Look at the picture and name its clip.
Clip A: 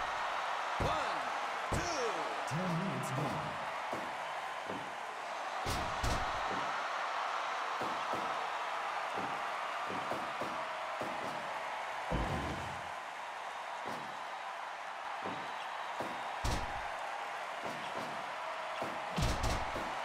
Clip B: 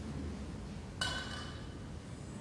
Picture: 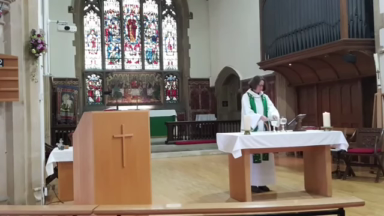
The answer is B